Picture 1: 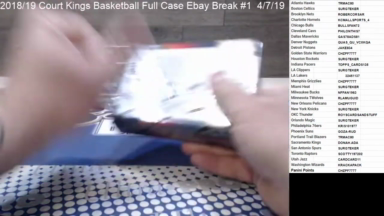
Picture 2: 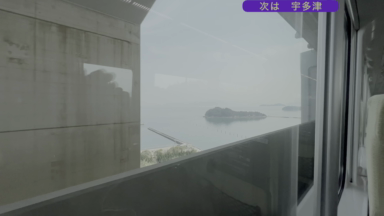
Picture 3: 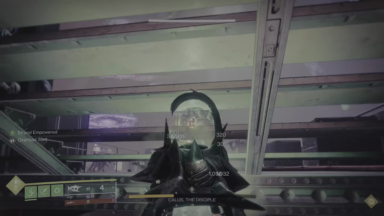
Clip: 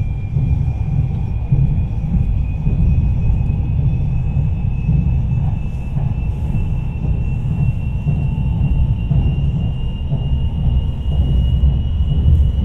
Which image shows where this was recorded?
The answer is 2